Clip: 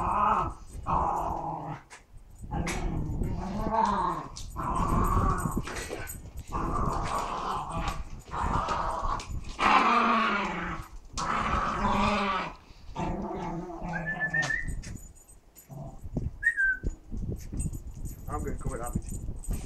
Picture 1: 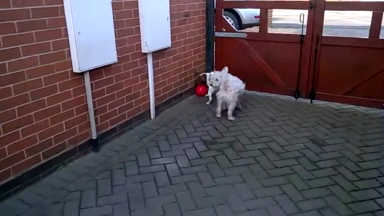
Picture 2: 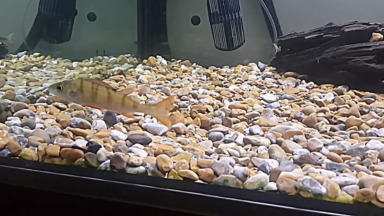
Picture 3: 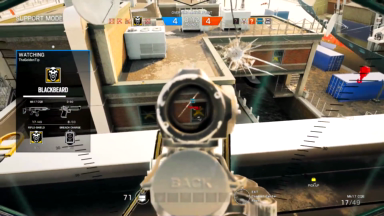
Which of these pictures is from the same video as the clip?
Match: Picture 1